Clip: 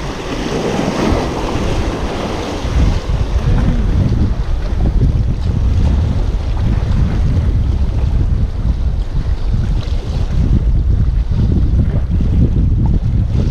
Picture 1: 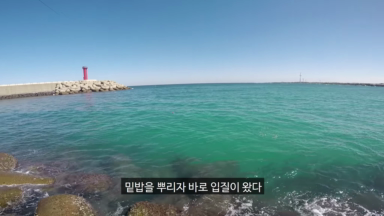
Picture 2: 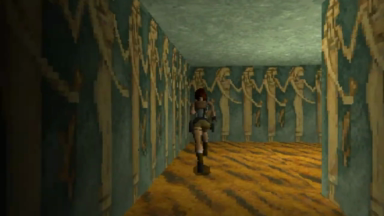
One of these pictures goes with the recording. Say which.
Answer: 1